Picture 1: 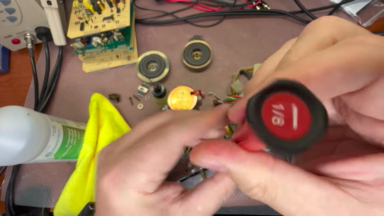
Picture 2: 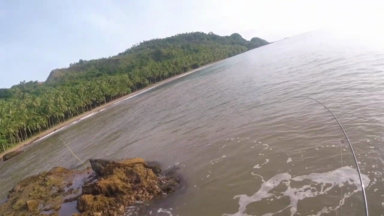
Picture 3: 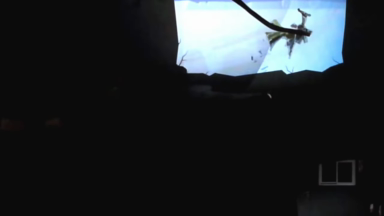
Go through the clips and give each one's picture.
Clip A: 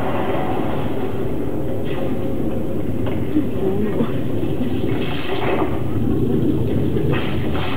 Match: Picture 3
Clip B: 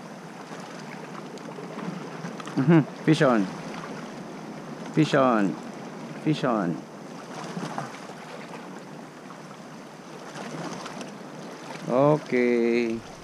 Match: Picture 2